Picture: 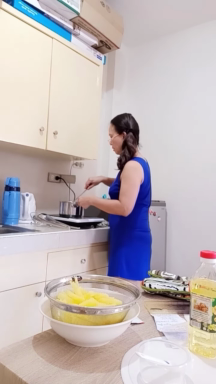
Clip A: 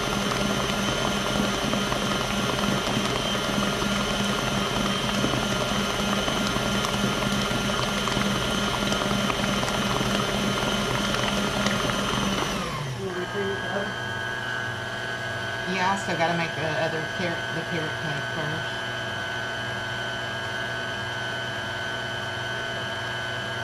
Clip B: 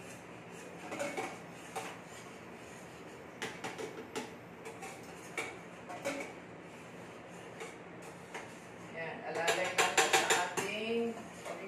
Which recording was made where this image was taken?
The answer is B